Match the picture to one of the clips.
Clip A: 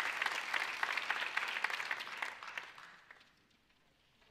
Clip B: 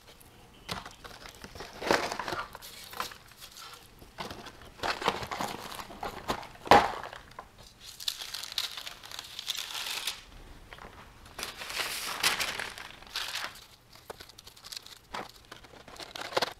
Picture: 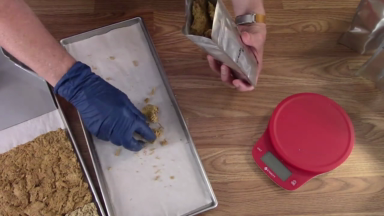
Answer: B